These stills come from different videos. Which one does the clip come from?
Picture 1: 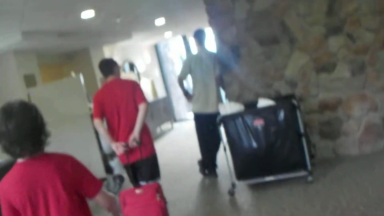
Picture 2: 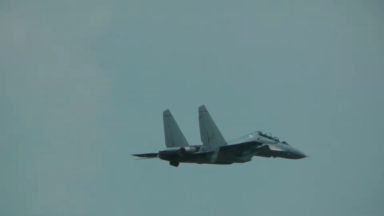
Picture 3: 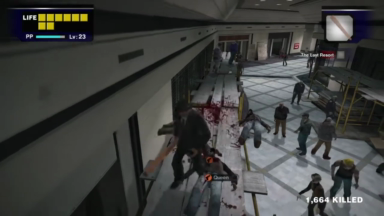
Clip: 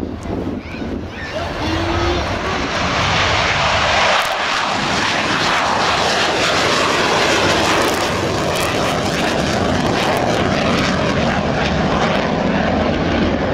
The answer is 2